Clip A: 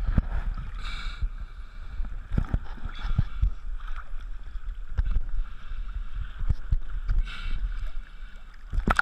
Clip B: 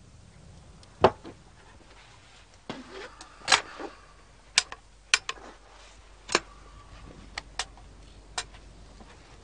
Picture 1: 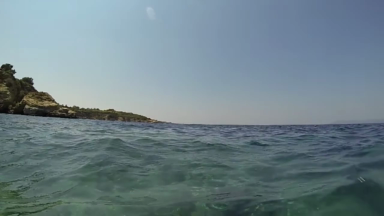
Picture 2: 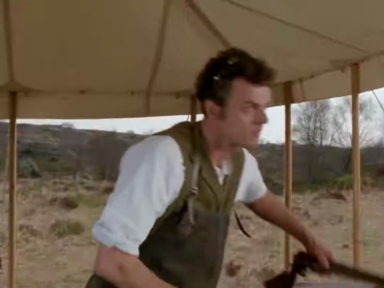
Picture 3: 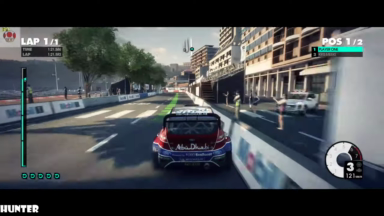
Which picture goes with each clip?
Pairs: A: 1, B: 2